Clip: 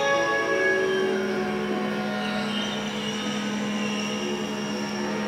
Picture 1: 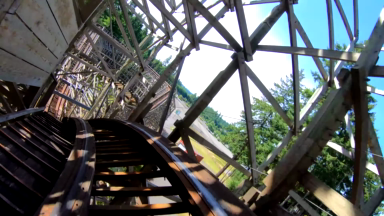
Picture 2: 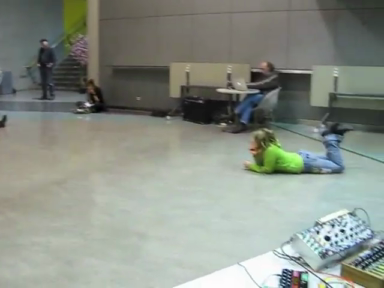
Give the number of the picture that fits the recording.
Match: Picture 2